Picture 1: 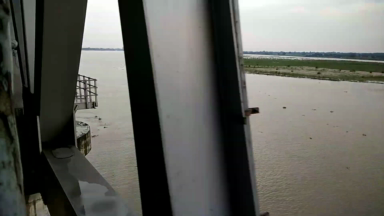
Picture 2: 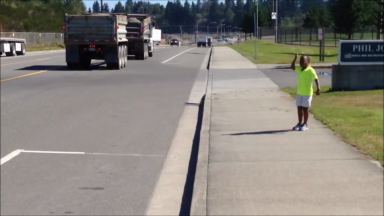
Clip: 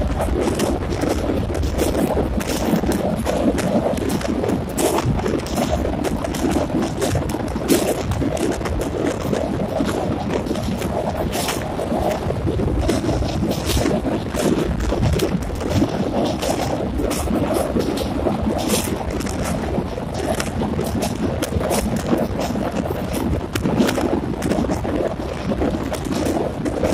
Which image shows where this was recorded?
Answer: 1